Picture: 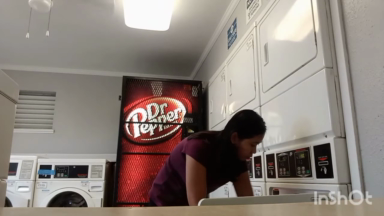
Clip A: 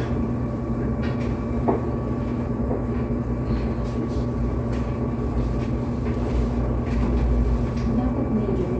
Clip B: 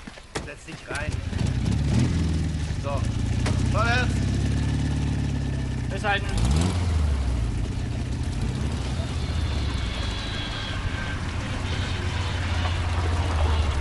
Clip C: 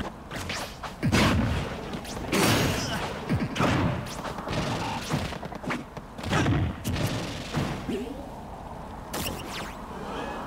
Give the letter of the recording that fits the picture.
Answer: A